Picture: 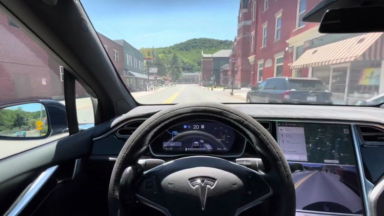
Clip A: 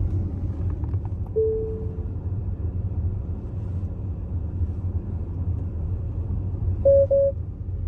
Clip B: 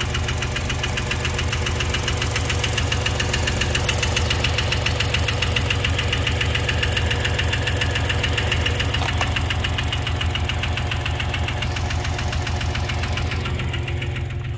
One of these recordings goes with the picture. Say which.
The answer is A